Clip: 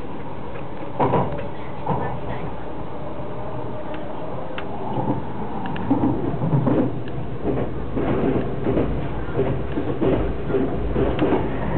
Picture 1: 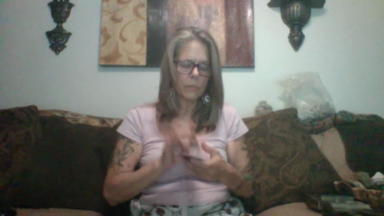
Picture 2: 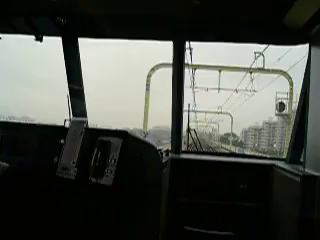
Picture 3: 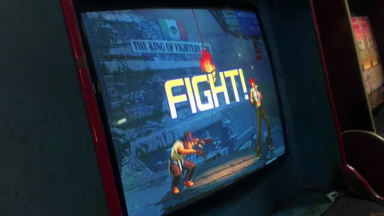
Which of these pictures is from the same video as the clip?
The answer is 2